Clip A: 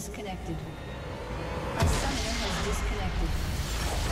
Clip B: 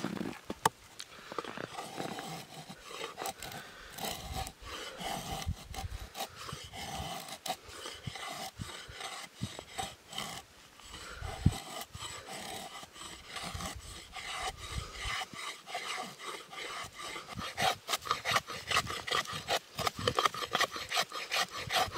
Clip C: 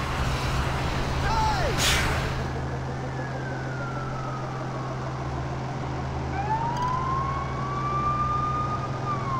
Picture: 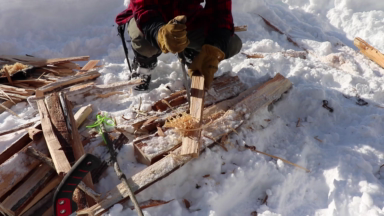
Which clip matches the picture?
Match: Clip B